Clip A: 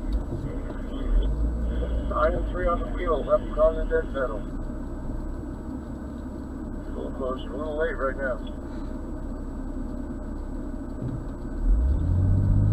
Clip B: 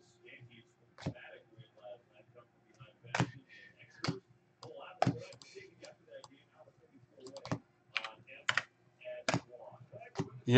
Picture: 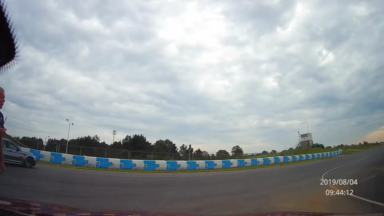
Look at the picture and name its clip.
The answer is A